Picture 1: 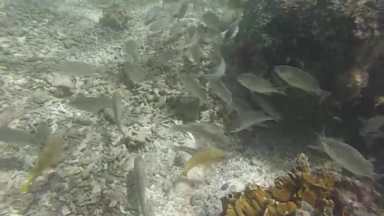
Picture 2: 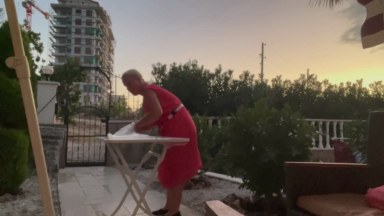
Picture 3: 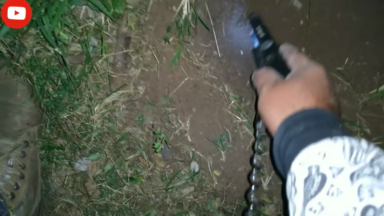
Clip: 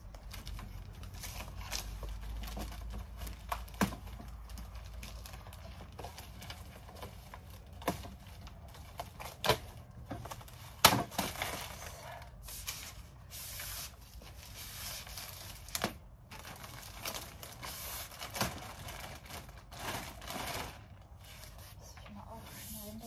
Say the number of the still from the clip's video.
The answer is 2